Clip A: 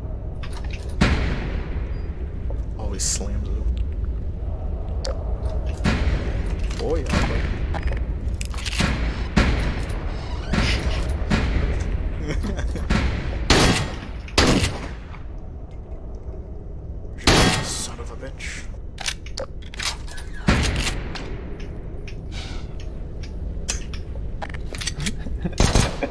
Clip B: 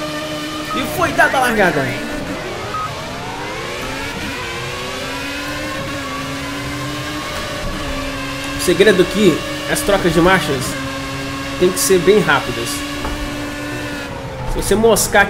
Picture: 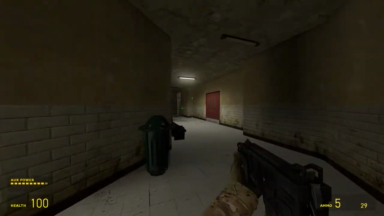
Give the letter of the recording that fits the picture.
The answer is A